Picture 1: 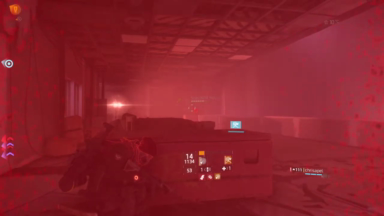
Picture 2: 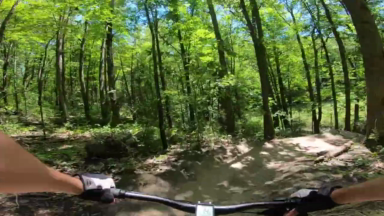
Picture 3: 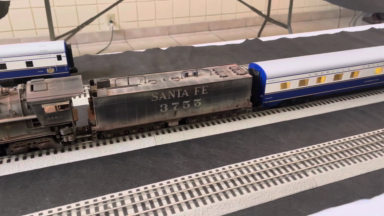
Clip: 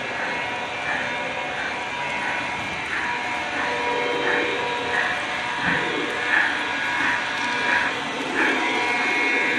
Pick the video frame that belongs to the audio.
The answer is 3